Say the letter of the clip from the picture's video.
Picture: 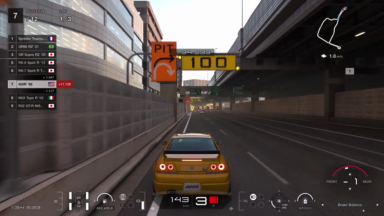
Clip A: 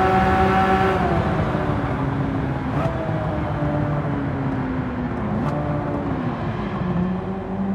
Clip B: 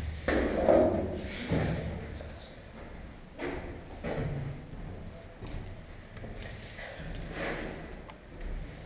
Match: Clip A